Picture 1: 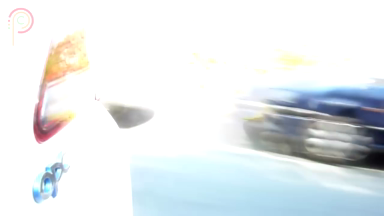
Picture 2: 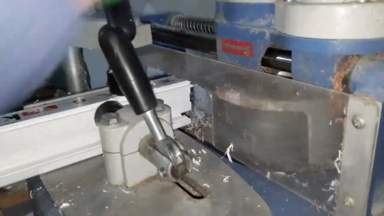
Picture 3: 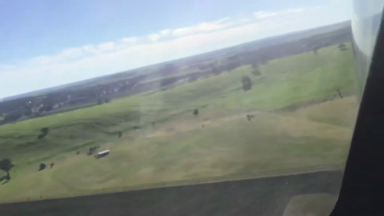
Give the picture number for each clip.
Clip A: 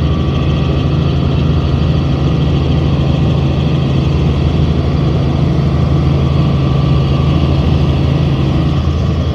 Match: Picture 3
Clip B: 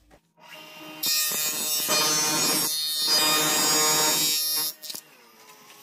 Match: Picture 2